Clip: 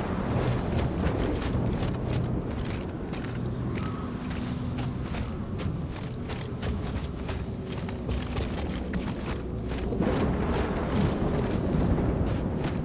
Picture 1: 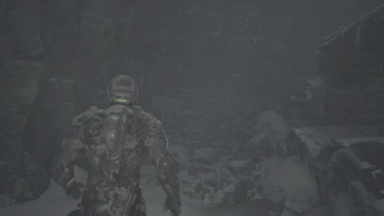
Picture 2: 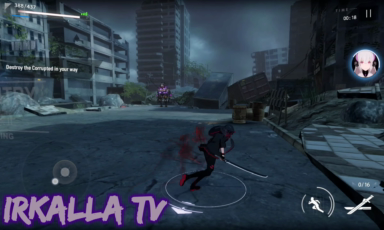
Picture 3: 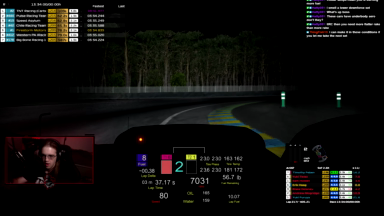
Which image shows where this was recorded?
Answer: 1